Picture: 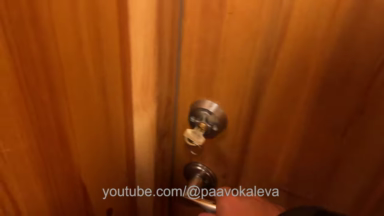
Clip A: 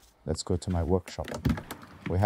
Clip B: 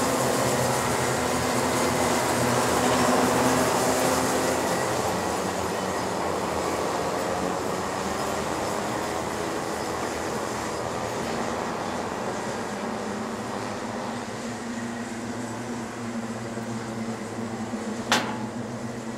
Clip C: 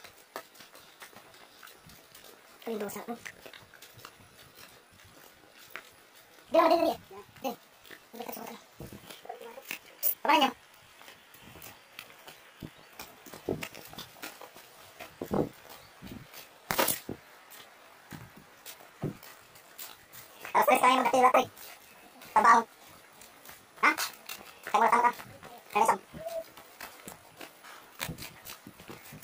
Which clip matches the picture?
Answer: A